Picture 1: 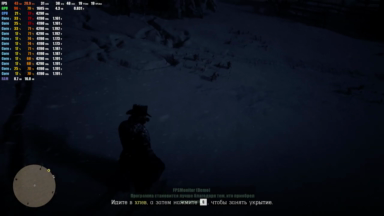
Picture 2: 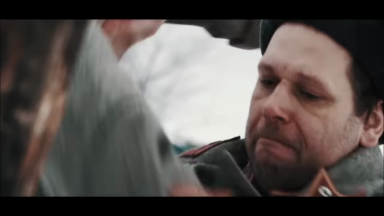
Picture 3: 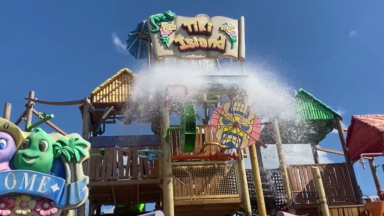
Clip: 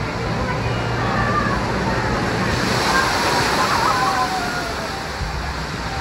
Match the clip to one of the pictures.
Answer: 3